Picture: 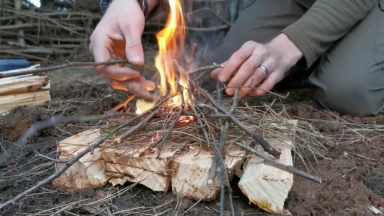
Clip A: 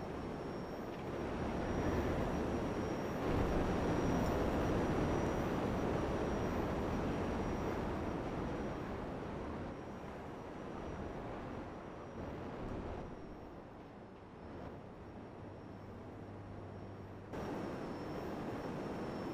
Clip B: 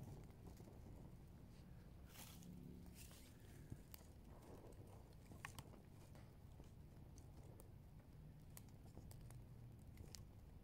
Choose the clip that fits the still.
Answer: B